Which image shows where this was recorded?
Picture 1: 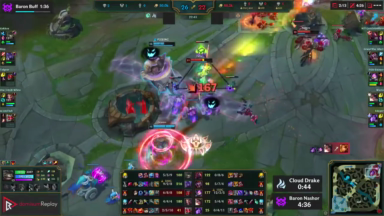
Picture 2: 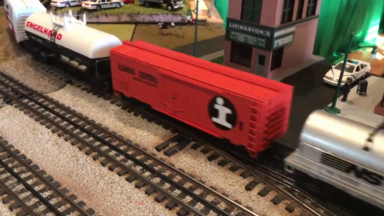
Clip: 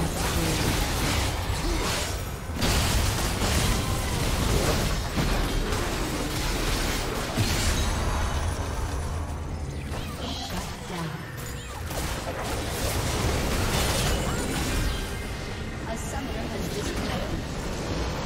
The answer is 1